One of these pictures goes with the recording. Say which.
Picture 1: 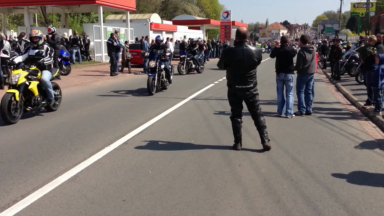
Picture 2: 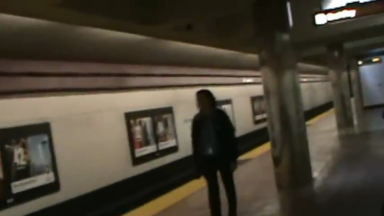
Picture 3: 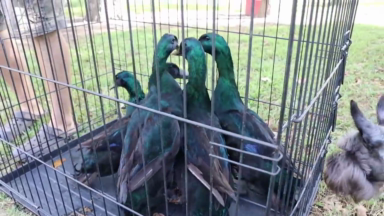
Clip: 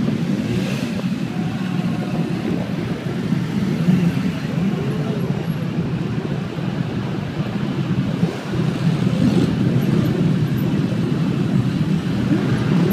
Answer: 1